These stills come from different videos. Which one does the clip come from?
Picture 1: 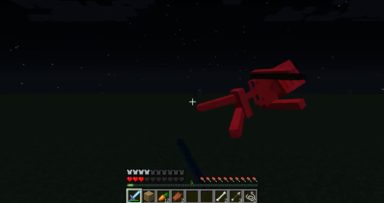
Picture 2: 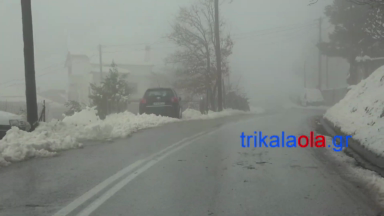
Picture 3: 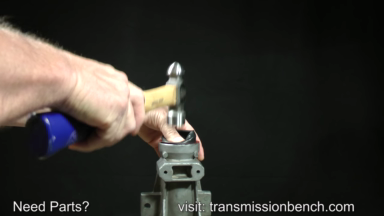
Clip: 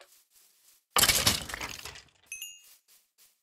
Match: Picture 1